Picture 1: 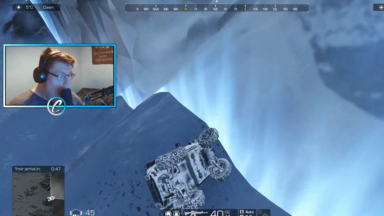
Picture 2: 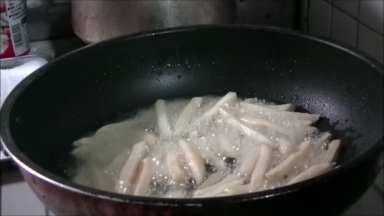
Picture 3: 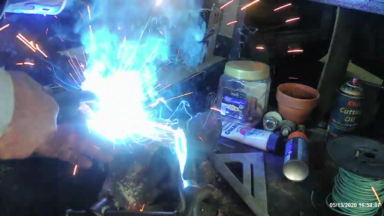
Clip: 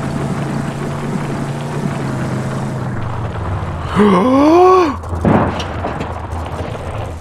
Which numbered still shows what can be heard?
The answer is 1